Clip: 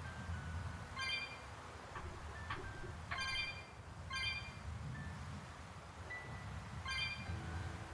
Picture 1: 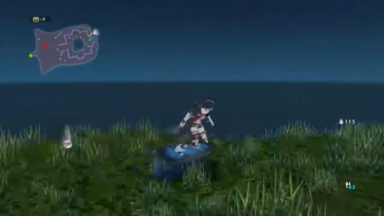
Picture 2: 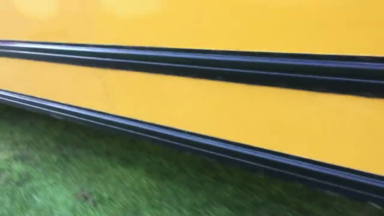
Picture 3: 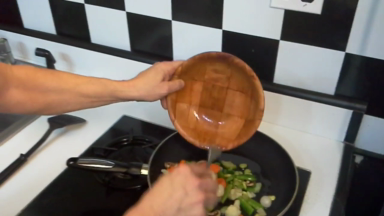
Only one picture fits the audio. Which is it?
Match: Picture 1